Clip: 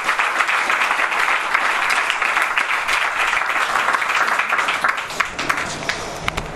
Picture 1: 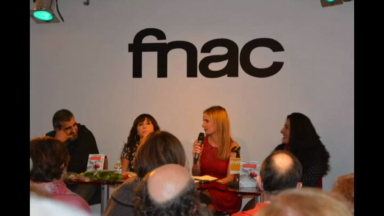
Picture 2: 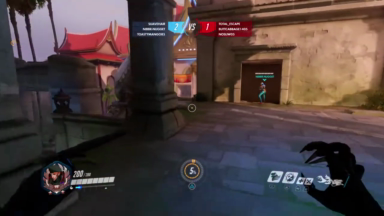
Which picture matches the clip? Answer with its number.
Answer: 1